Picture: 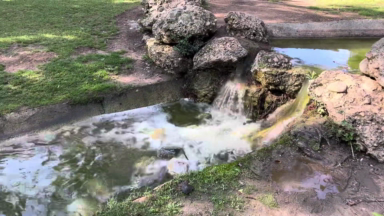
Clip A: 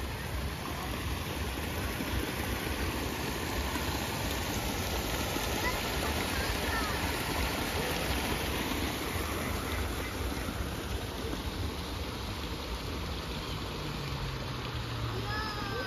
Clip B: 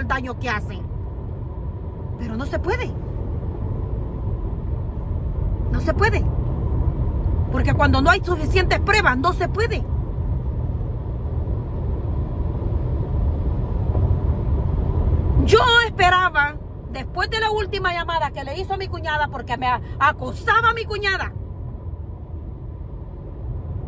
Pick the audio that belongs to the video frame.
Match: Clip A